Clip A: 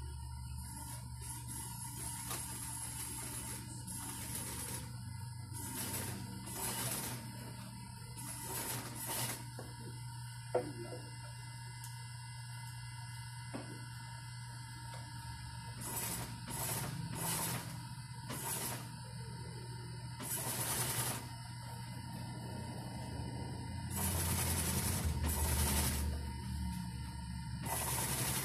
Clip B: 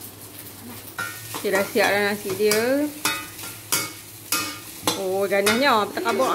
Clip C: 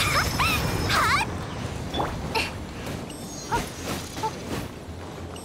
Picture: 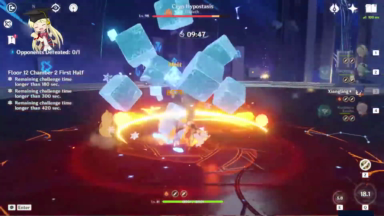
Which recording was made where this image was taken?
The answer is C